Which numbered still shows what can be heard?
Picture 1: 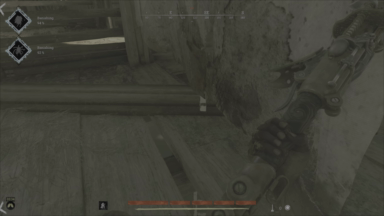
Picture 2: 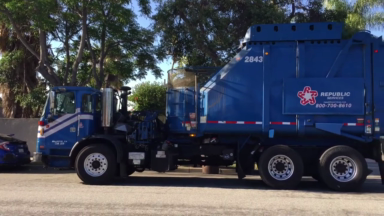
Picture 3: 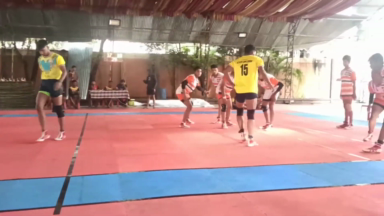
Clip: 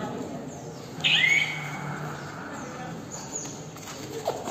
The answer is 3